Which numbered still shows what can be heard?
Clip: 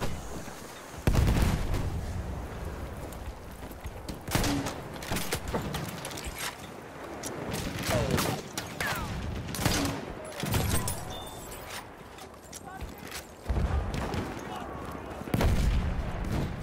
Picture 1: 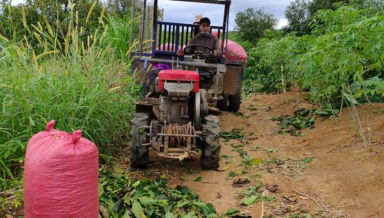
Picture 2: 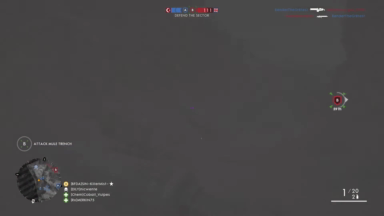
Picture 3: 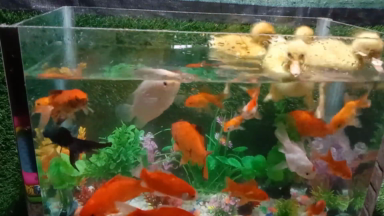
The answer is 2